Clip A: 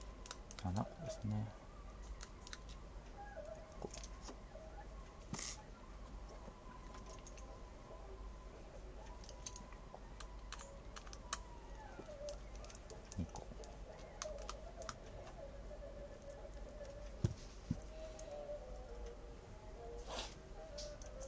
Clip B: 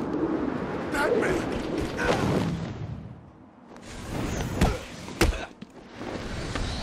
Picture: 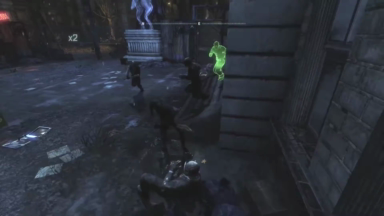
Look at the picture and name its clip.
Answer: B